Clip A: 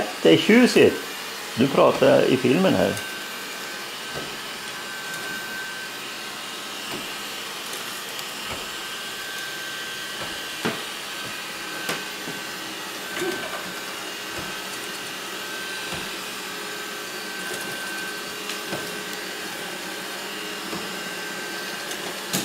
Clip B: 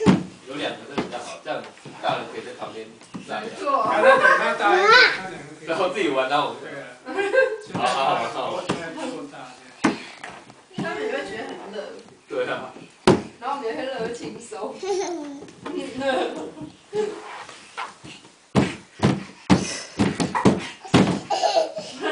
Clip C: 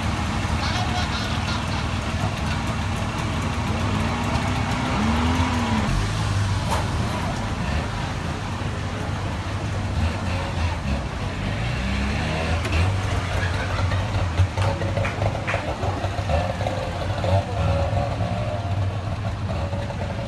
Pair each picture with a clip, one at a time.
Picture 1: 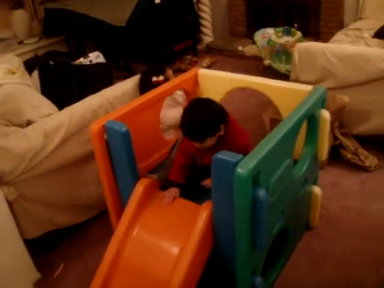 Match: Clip B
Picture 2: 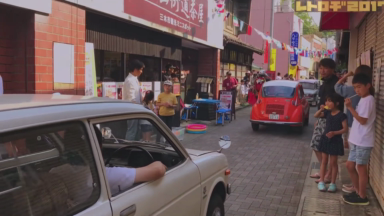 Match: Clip C